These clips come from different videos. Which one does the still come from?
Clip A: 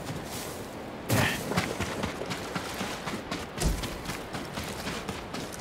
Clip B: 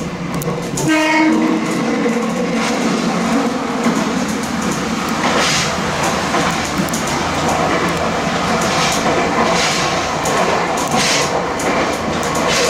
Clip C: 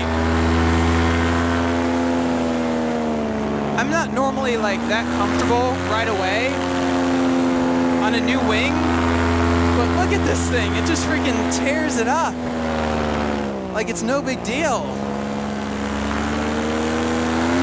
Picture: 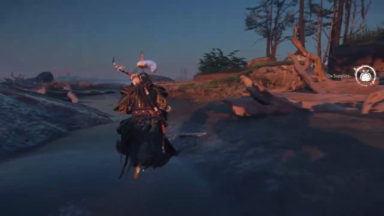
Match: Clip A